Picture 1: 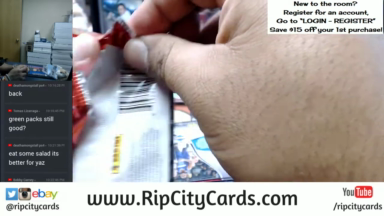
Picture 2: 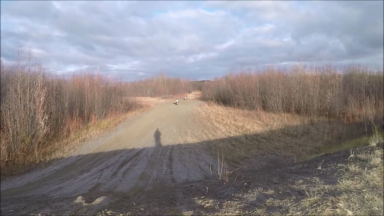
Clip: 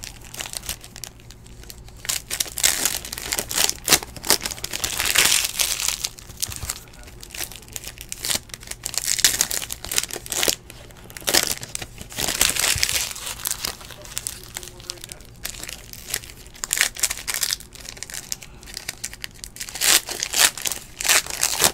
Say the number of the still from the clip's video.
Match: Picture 1